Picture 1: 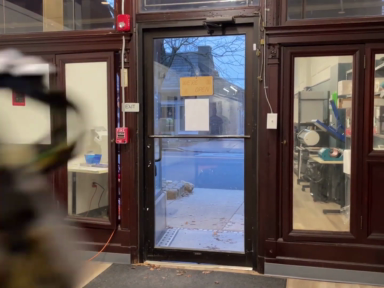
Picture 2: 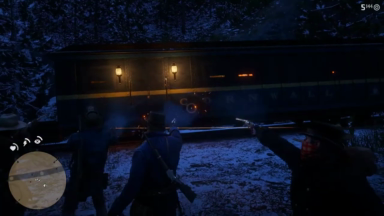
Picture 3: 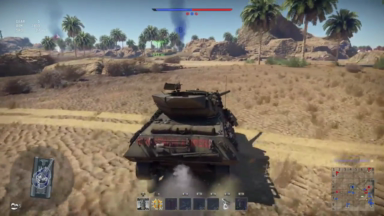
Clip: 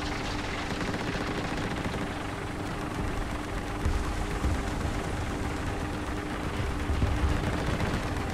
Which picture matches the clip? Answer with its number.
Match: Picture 3